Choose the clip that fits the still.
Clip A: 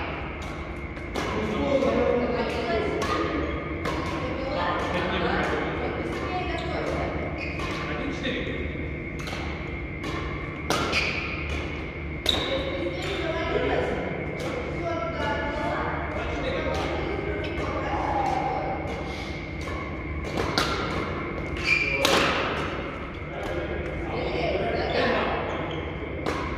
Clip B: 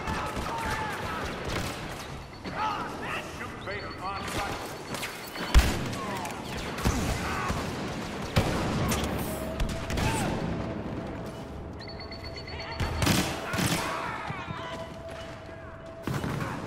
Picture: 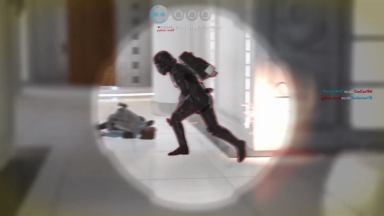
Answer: B